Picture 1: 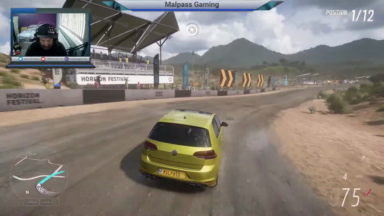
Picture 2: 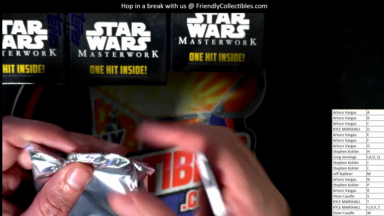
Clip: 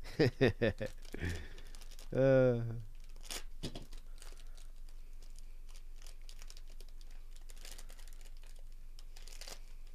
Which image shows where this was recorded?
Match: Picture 2